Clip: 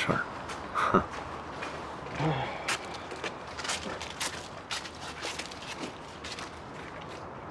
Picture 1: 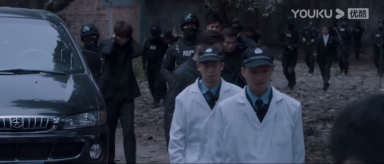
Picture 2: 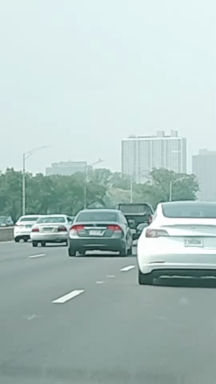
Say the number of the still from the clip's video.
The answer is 1